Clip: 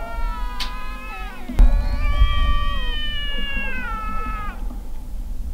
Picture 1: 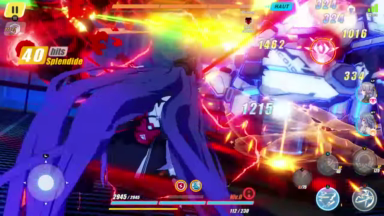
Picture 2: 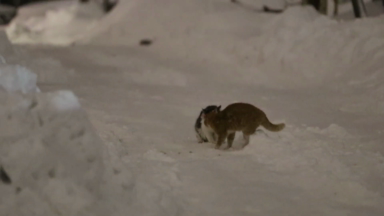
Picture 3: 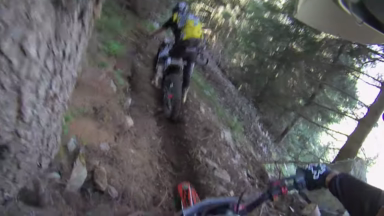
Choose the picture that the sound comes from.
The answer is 2